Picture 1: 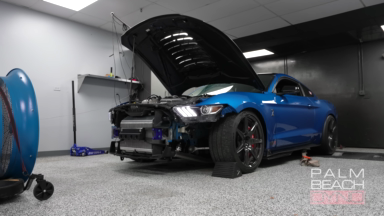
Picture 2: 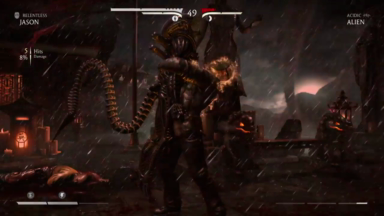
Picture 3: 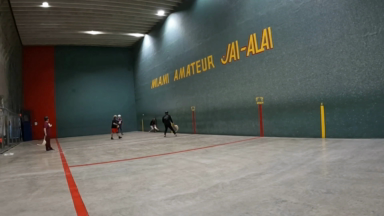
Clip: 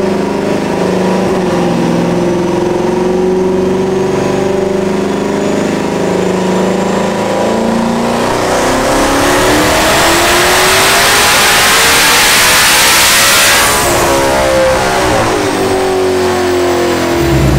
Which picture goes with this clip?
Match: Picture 1